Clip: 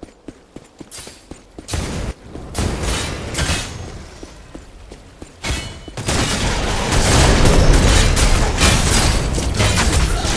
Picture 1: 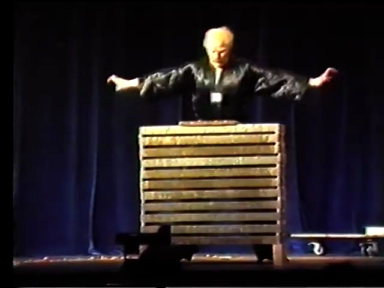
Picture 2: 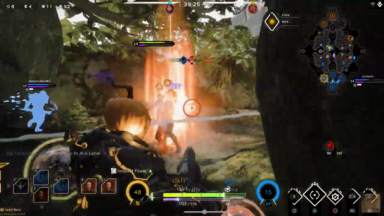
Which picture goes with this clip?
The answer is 2